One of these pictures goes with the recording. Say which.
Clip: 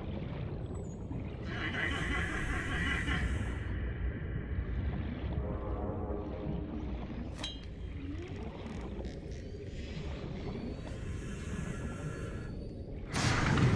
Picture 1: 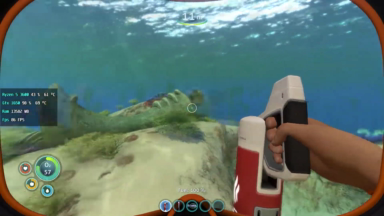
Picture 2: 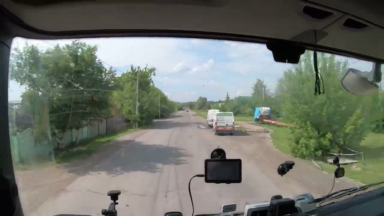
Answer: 1